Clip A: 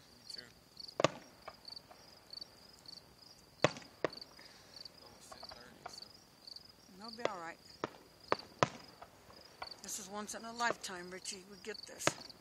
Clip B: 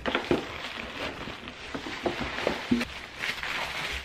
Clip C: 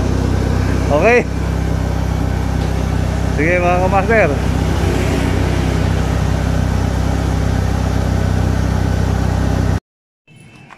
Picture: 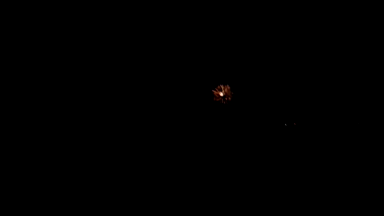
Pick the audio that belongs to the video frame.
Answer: A